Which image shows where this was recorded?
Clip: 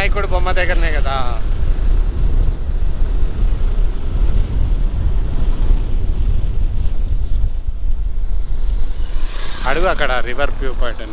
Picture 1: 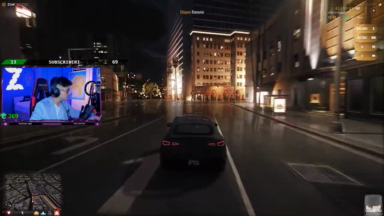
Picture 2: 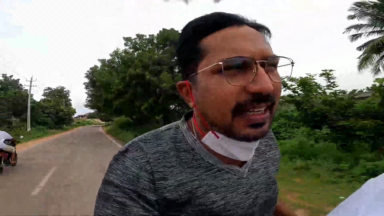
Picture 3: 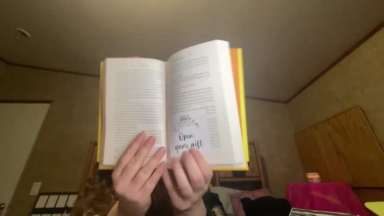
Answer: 2